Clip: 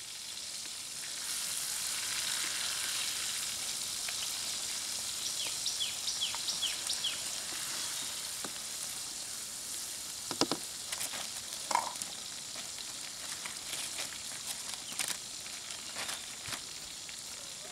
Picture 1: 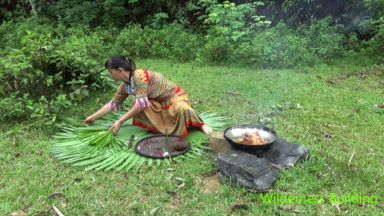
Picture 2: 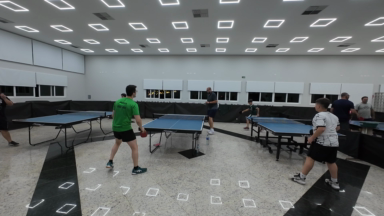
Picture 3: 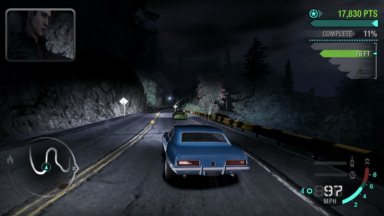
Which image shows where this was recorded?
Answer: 1